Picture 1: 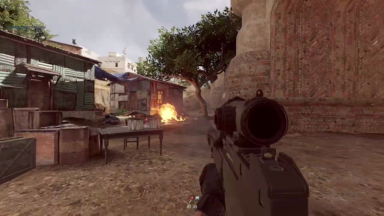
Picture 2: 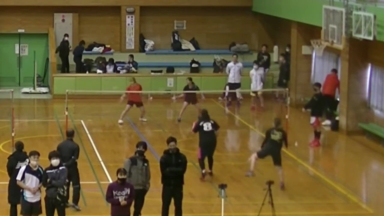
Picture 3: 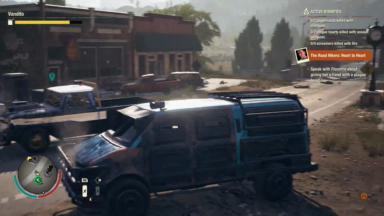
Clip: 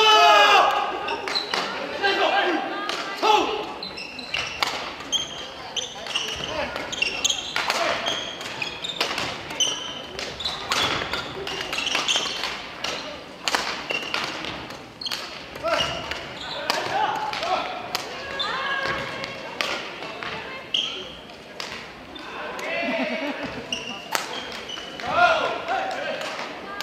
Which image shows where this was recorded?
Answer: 2